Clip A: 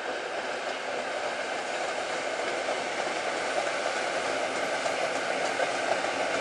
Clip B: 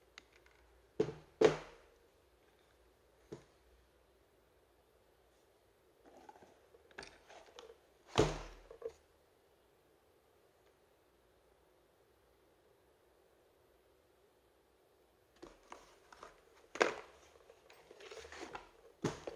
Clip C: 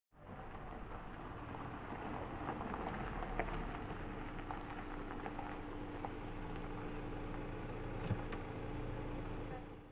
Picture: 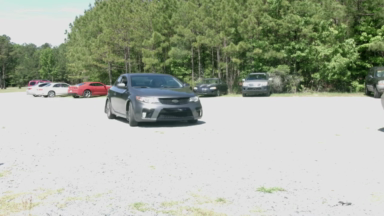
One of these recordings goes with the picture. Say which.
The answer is C